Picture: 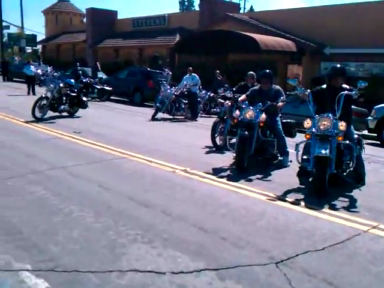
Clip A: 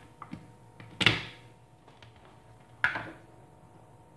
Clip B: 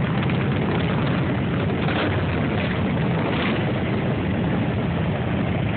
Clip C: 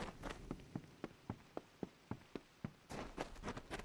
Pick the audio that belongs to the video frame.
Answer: B